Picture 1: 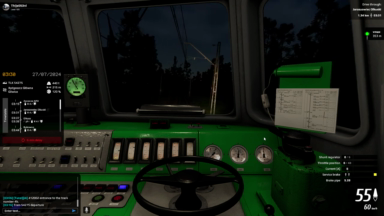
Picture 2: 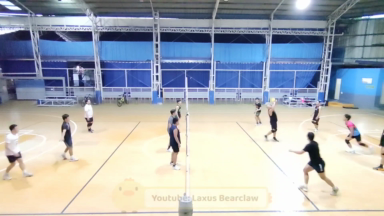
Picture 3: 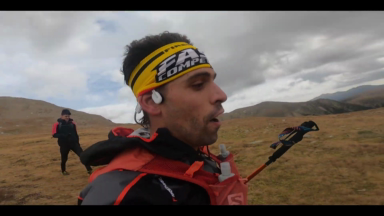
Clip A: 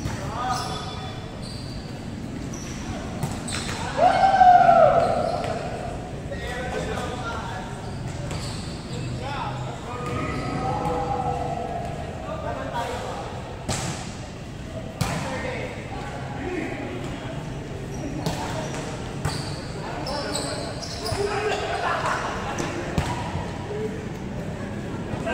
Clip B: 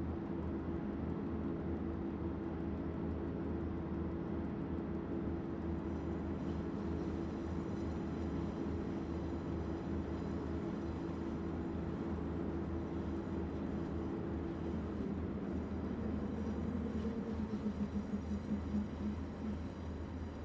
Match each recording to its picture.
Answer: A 2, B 1